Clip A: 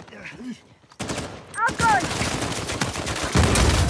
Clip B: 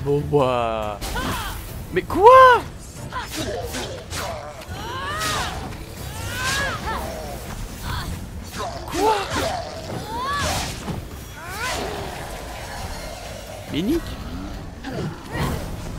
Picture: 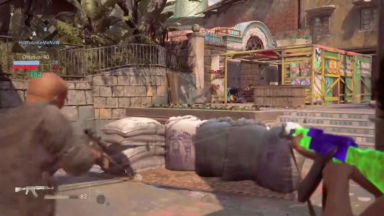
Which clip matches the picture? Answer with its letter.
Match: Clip A